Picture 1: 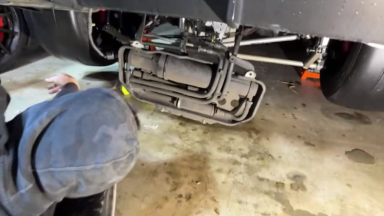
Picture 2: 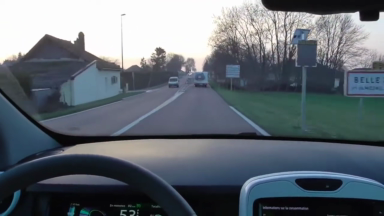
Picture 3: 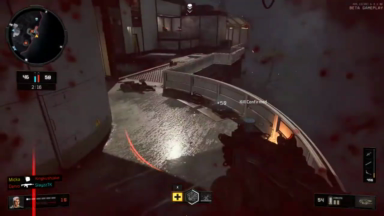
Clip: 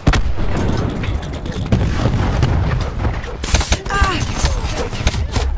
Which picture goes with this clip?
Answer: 3